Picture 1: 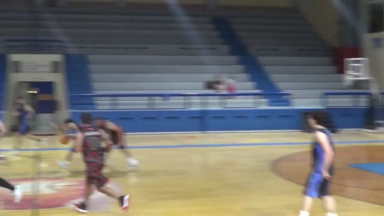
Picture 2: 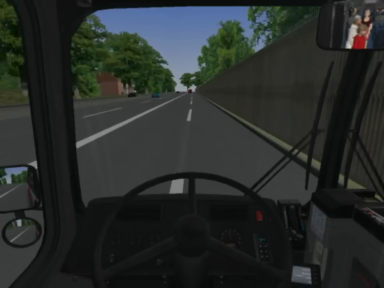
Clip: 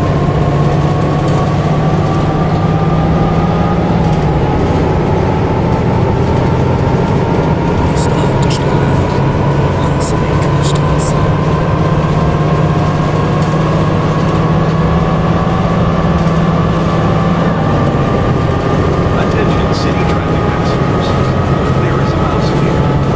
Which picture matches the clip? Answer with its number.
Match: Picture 2